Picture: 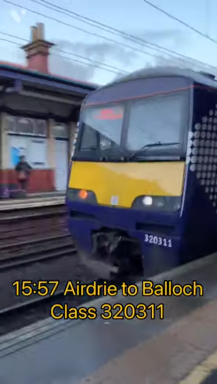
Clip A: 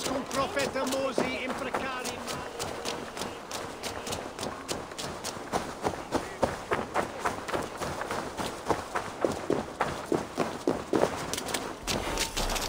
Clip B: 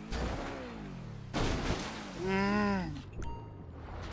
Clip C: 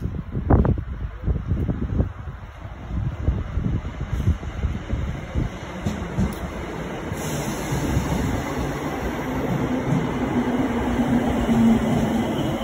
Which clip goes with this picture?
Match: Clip C